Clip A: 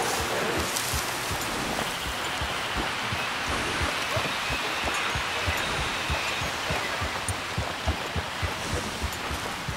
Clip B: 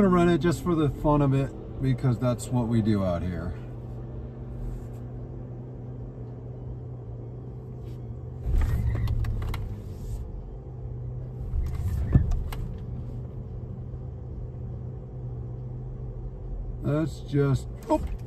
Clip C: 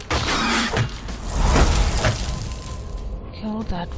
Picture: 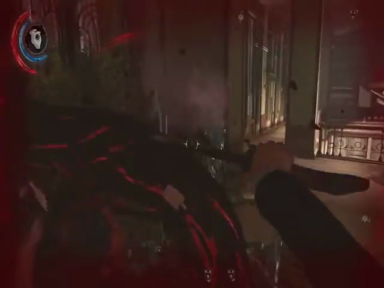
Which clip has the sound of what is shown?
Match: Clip C